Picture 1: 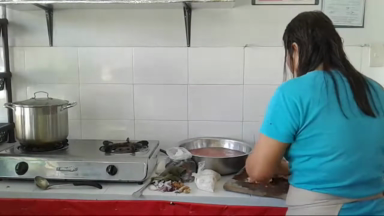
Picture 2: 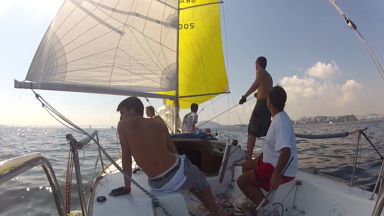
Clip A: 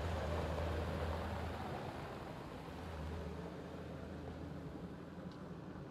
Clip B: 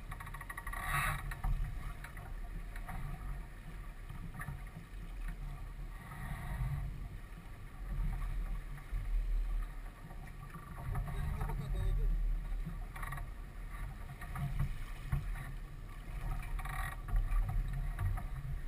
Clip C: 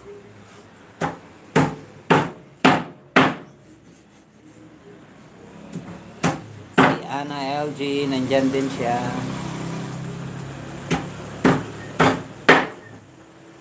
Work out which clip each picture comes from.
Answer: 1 C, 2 B